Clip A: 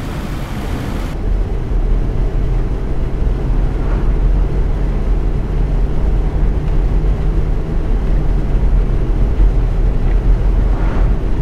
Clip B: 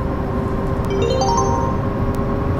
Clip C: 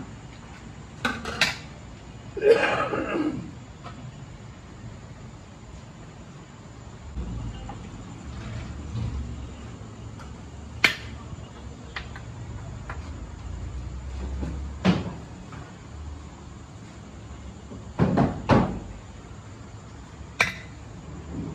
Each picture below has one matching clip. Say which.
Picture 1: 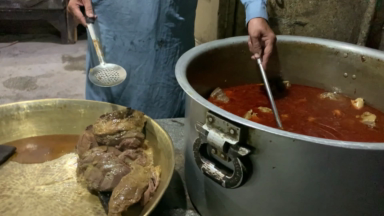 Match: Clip C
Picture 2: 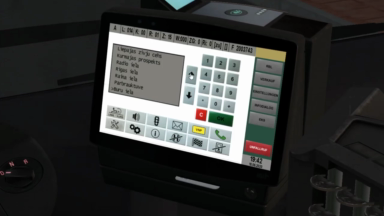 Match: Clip B